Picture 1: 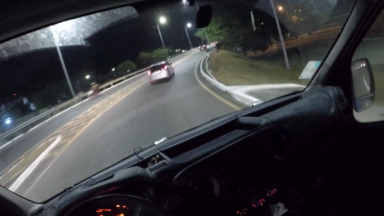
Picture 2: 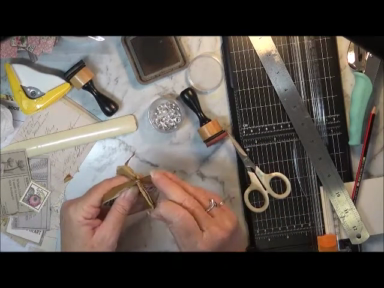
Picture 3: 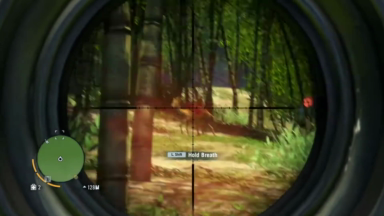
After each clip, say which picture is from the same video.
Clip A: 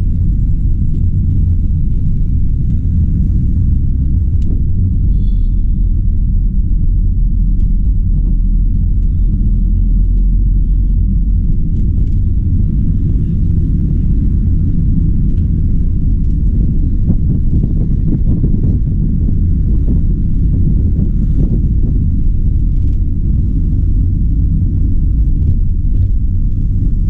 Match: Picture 1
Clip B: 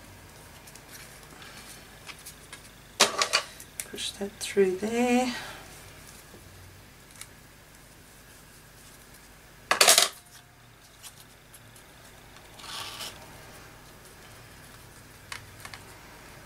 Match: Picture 2